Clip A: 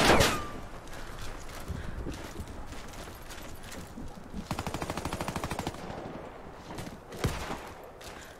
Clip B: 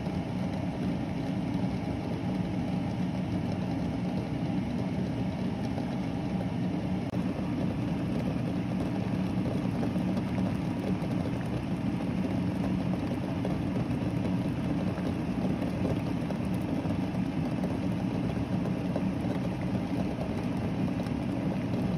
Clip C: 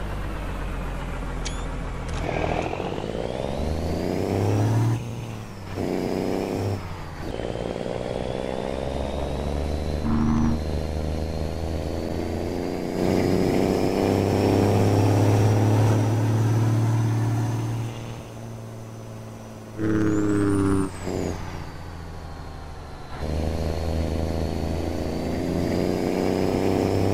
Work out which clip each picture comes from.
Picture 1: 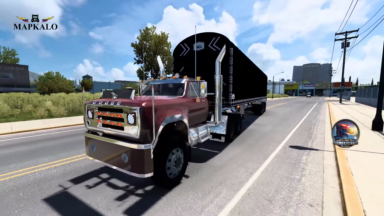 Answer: C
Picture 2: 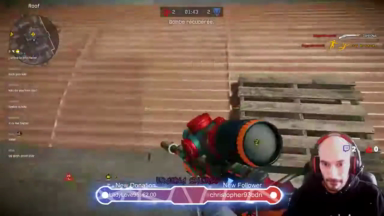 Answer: A